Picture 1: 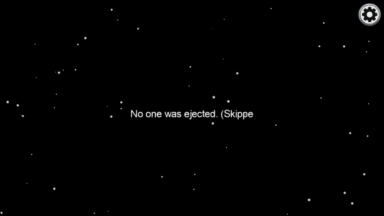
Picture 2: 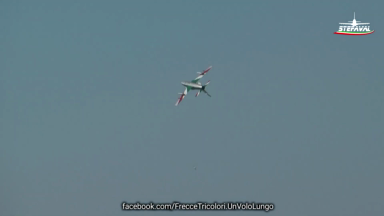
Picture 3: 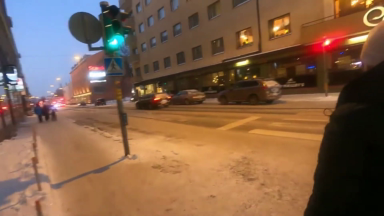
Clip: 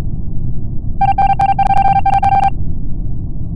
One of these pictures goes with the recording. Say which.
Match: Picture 1